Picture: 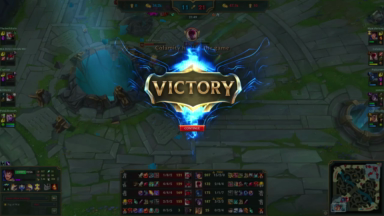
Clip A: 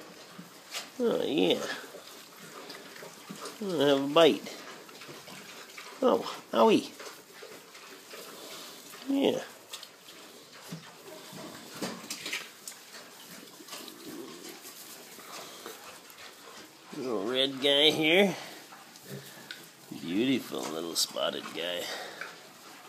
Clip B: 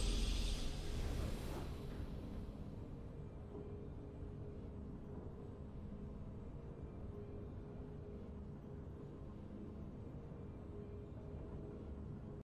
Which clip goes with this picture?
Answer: B